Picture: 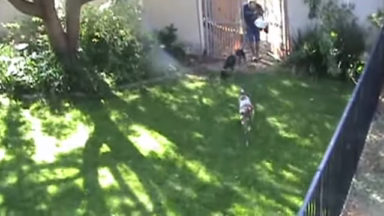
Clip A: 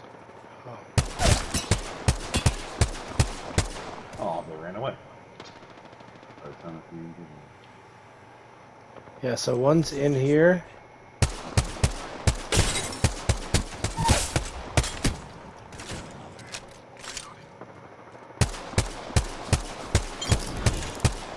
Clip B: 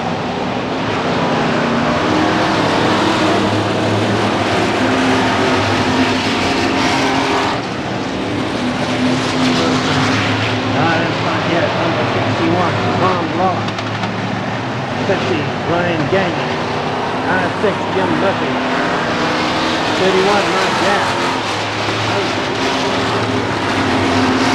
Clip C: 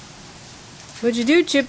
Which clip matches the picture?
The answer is C